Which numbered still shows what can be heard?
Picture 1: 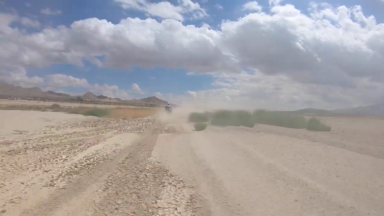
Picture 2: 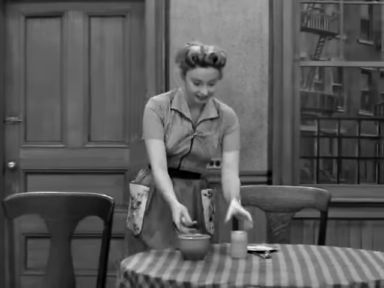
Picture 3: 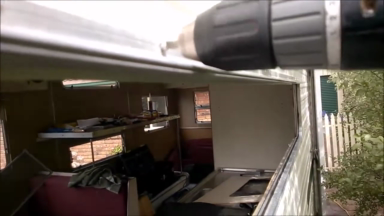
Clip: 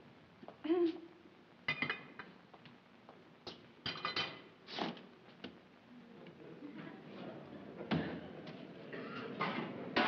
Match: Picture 2